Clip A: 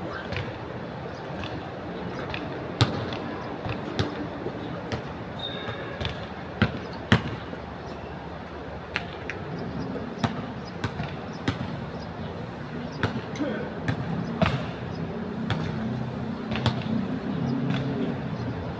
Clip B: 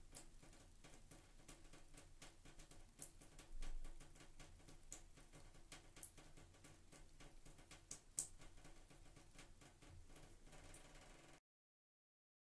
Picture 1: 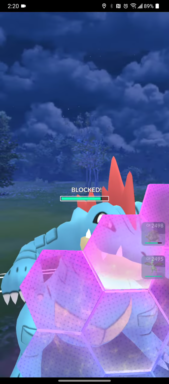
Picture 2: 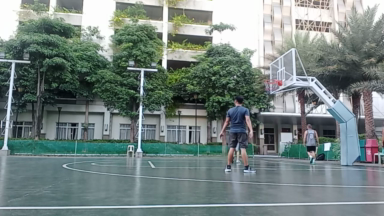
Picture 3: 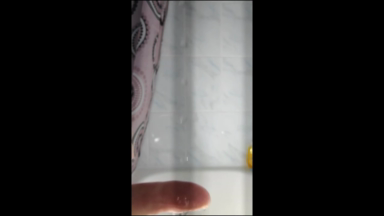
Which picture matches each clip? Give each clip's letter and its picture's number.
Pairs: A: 2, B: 3